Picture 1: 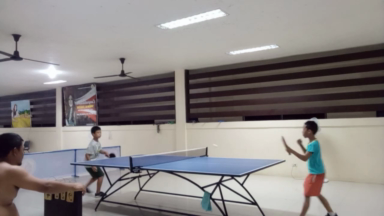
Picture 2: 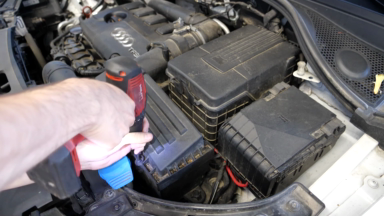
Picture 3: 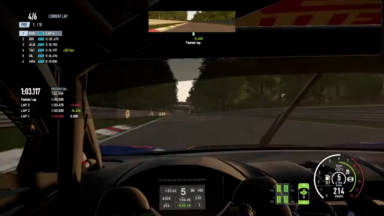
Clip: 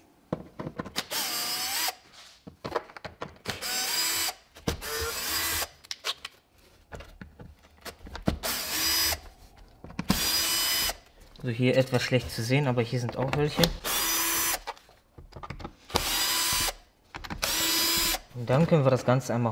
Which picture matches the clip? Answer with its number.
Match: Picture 2